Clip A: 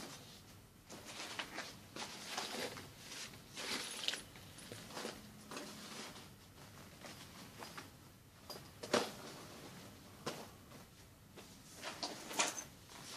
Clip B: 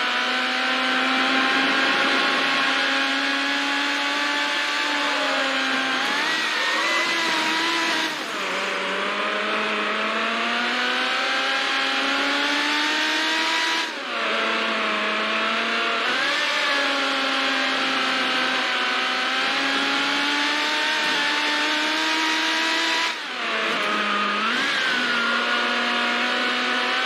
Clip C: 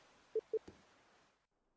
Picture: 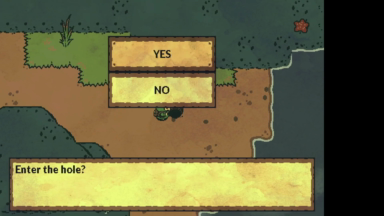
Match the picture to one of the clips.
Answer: C